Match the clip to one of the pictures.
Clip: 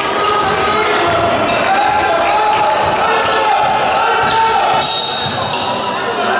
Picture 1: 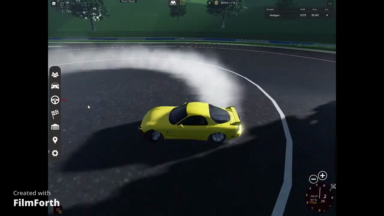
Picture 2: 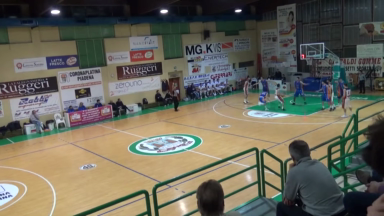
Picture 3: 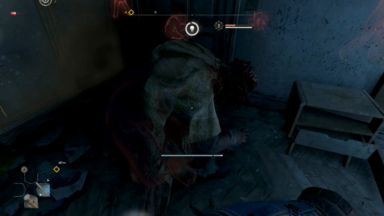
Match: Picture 2